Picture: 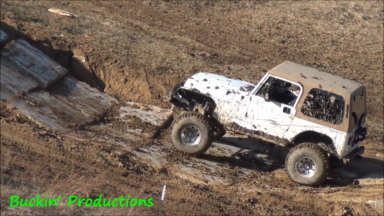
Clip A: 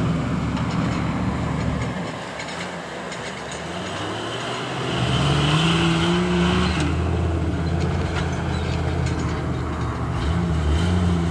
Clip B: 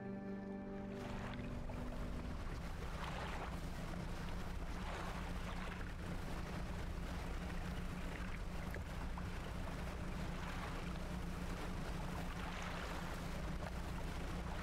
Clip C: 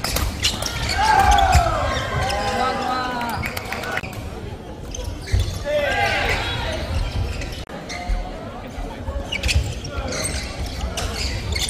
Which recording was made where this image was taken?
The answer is A